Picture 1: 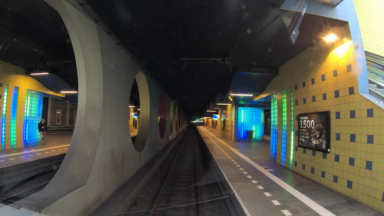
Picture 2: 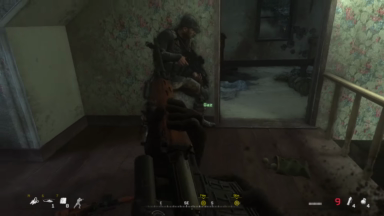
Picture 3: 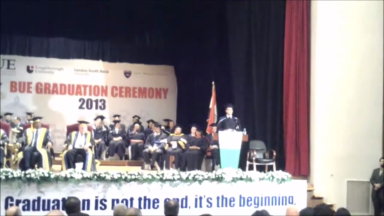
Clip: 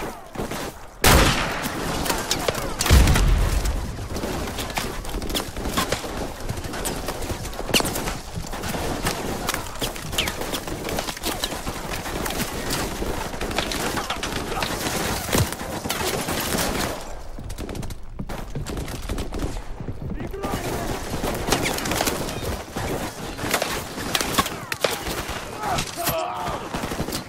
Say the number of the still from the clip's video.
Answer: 2